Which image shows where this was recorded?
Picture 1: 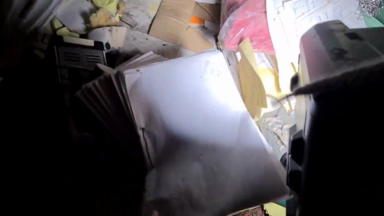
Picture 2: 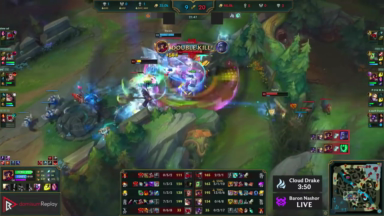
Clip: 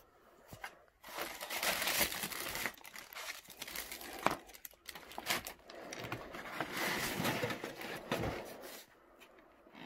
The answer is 1